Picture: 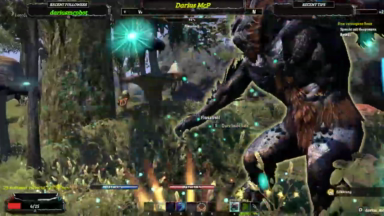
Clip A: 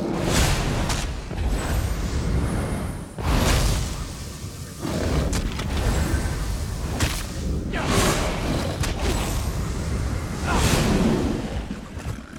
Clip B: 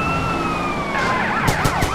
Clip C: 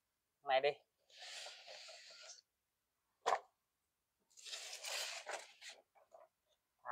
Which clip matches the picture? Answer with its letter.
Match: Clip A